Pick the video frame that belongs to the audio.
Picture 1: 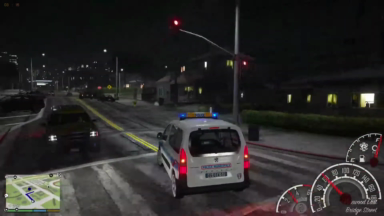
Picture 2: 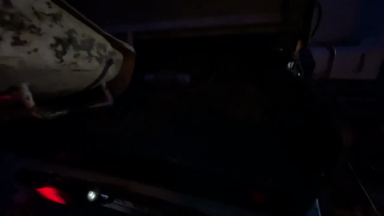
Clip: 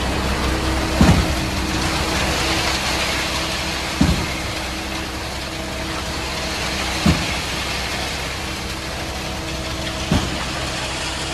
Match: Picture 2